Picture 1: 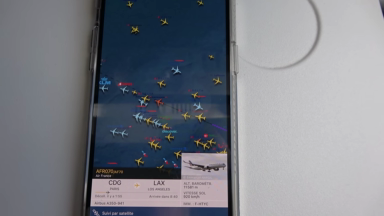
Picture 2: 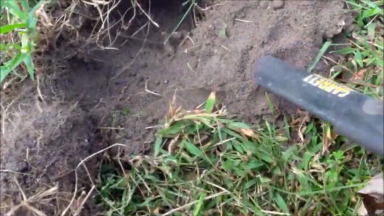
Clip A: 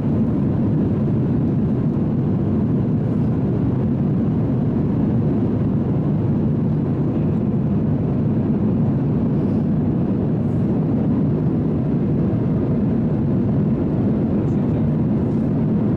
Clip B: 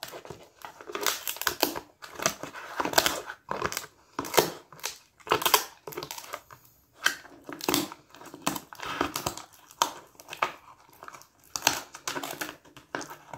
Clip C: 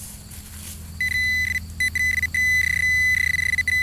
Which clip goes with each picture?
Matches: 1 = A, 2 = C